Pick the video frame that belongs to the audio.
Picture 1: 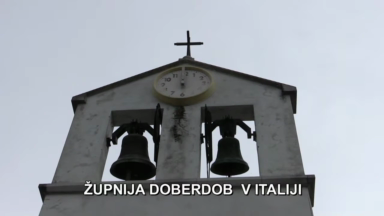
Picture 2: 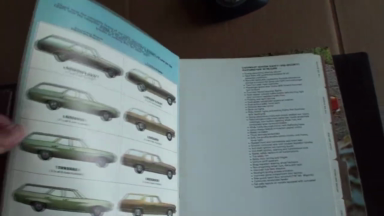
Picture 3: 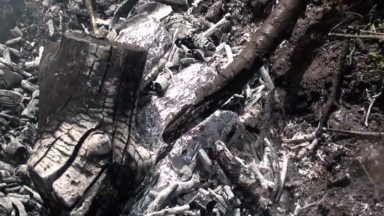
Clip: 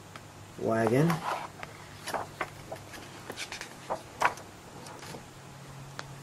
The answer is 2